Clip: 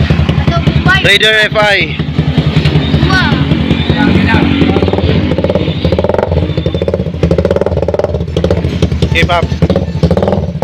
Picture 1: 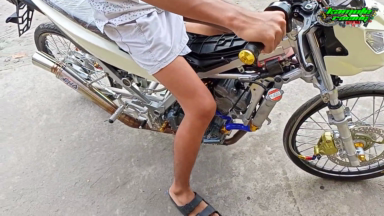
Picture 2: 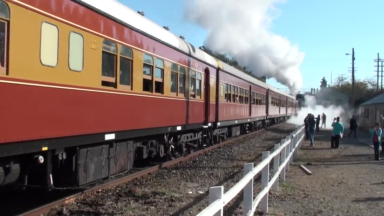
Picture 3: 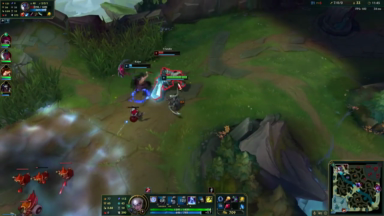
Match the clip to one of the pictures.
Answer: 1